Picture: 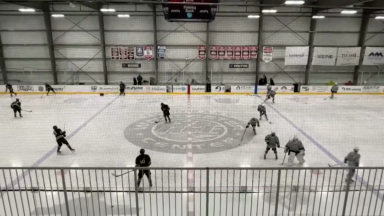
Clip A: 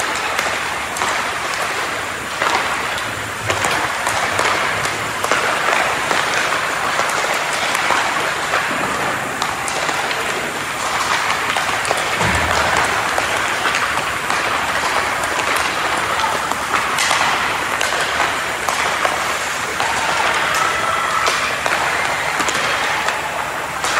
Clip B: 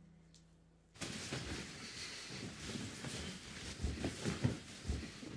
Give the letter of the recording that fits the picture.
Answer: A